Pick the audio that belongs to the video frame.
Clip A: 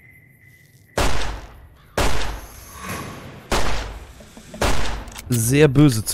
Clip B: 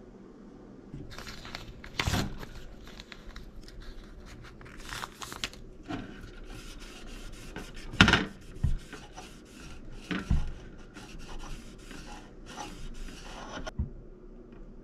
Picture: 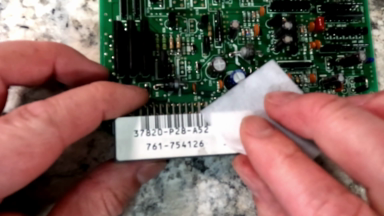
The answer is B